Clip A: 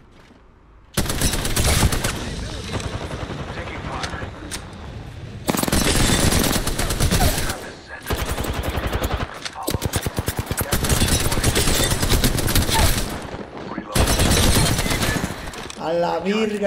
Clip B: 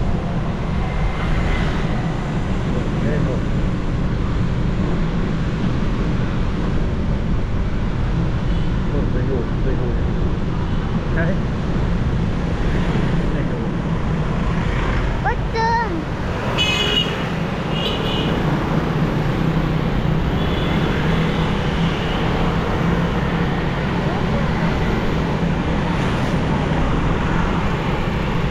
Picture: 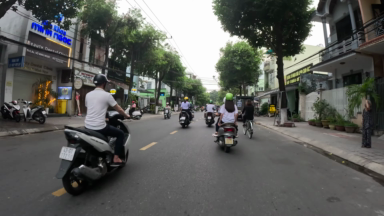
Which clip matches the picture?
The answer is B